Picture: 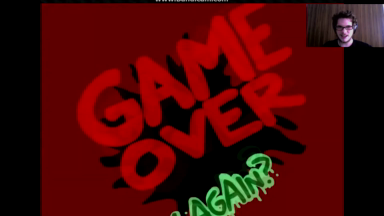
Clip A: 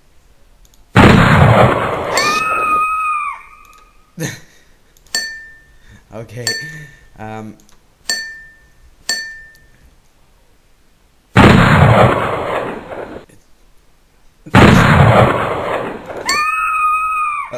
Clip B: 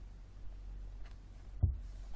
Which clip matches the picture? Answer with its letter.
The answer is A